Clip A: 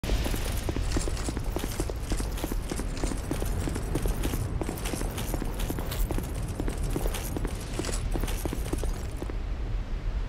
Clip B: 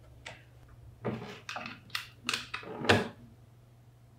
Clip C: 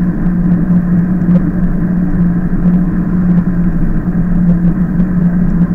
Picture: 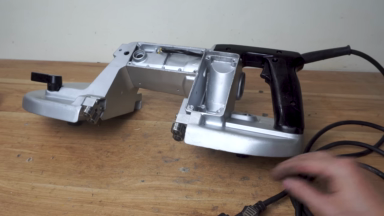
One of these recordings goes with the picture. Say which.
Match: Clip B